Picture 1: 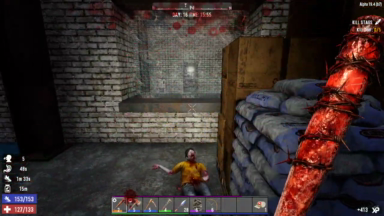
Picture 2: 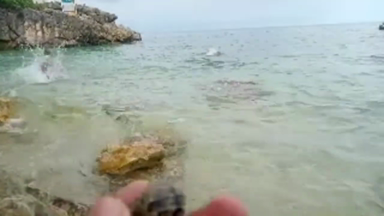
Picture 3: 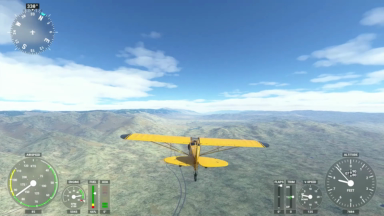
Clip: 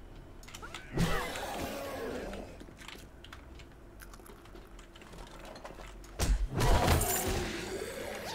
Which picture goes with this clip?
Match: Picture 1